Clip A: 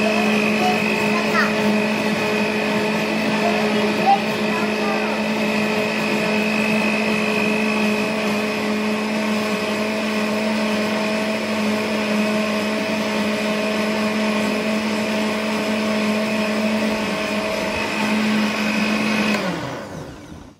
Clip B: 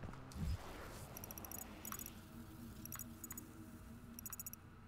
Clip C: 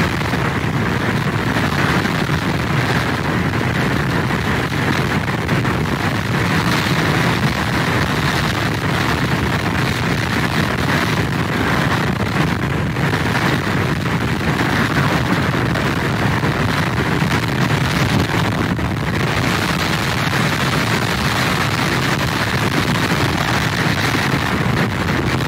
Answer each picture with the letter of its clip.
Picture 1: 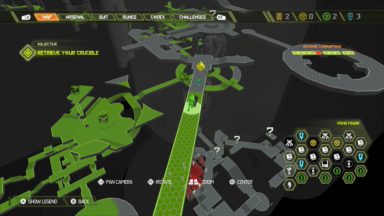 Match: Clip B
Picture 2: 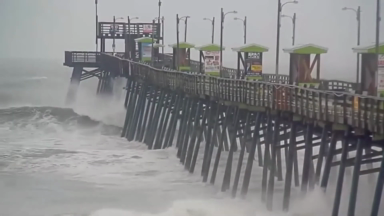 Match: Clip C